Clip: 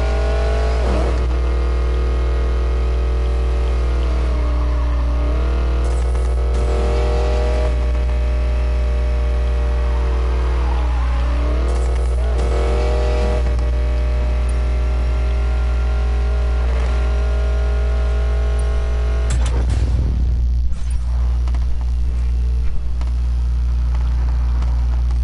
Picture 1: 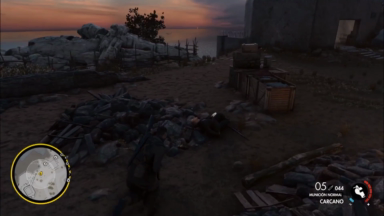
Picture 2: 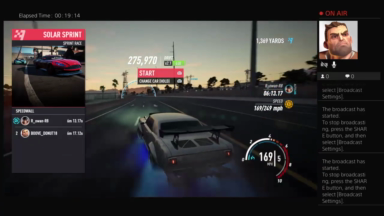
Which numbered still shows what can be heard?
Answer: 2